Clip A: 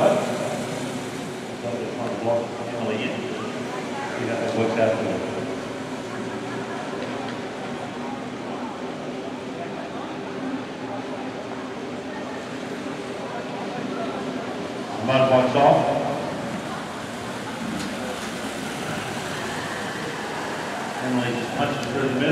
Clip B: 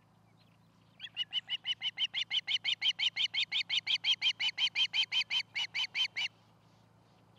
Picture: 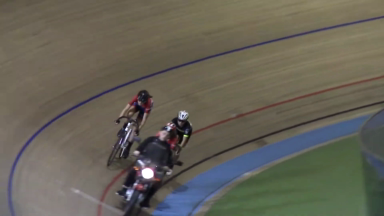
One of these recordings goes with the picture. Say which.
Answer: A